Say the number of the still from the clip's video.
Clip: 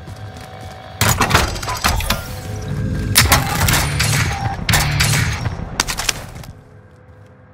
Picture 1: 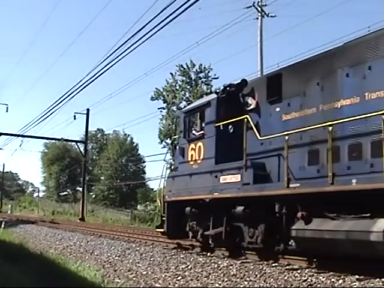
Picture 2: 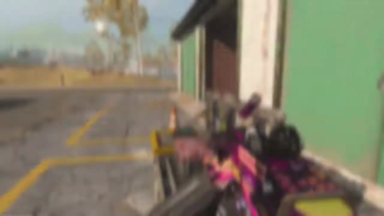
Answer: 2